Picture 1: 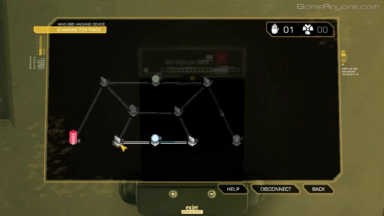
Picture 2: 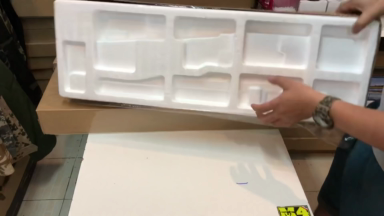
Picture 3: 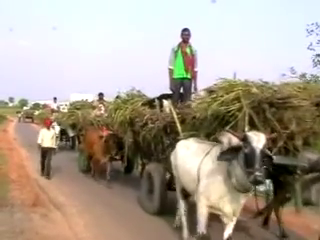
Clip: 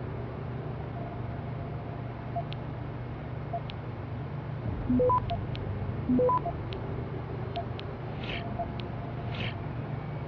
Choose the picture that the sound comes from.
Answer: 1